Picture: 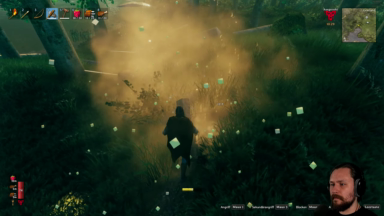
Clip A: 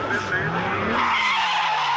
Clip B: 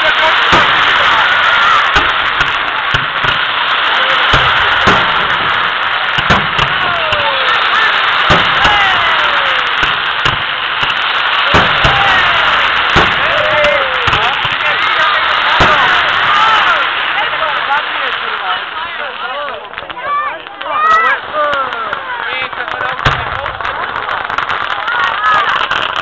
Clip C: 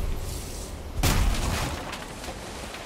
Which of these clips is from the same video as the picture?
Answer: C